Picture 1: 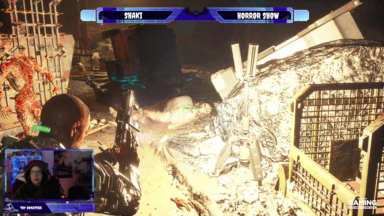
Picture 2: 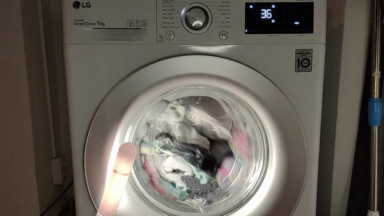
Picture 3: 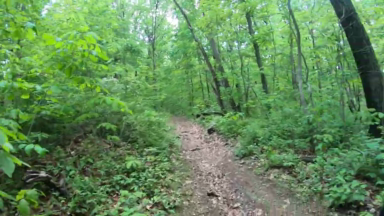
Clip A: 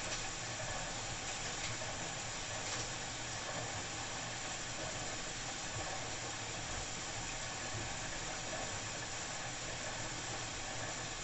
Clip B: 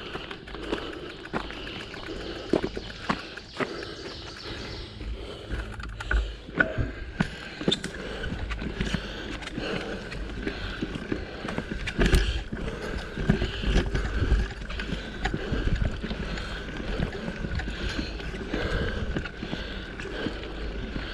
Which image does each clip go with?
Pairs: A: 2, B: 3